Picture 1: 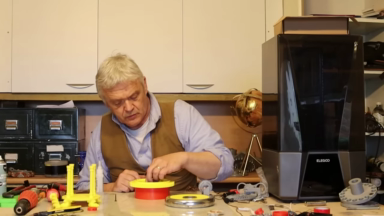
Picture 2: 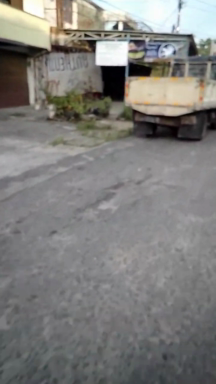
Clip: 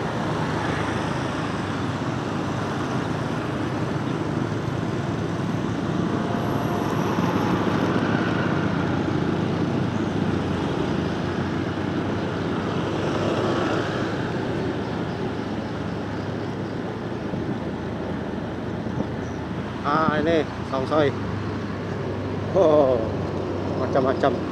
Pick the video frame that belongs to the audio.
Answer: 2